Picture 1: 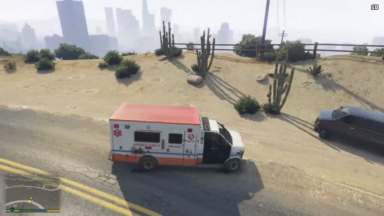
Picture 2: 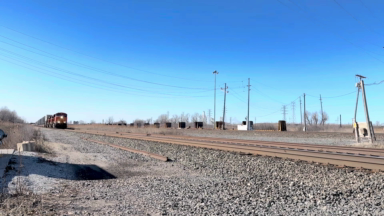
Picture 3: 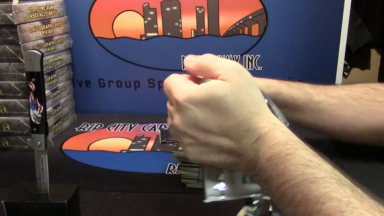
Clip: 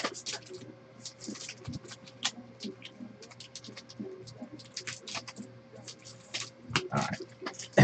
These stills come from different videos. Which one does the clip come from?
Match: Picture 3